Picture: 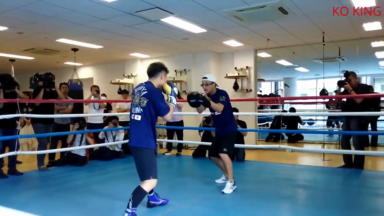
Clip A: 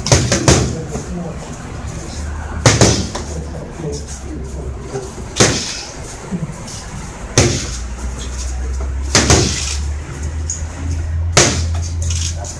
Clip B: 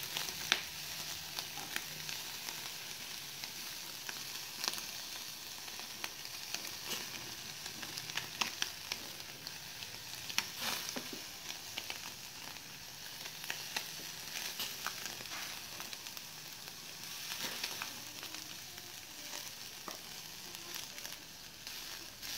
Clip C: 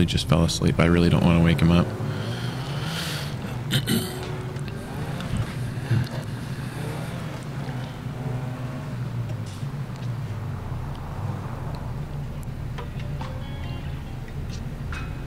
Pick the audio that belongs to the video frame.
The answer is A